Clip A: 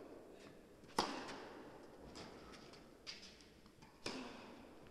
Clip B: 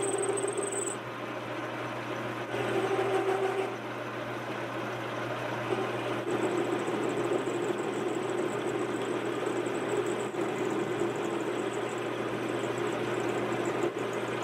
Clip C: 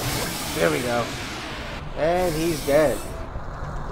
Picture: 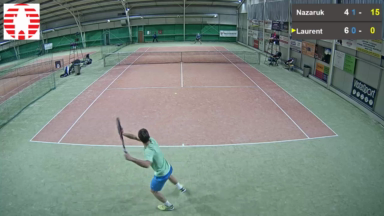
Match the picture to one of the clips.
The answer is A